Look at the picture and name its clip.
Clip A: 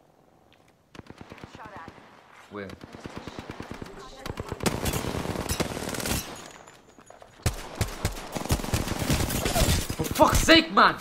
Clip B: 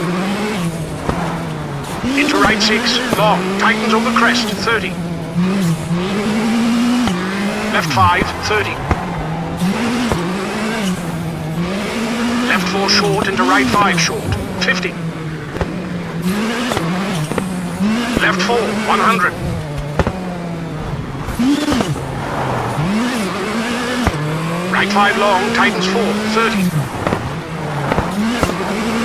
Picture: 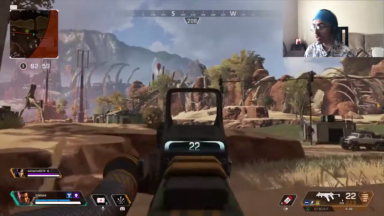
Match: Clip A